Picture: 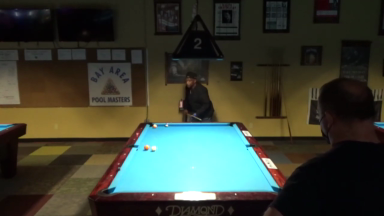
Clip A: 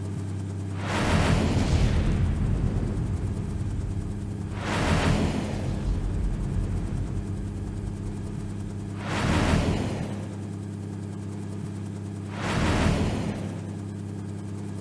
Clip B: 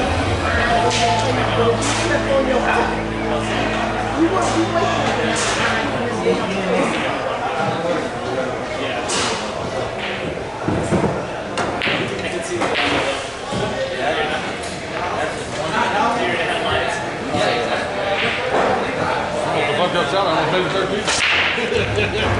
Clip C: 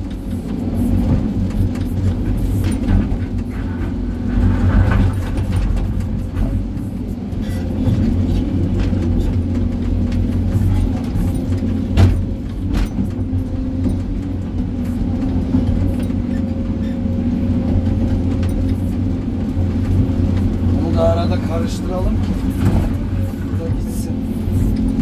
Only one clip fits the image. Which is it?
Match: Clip B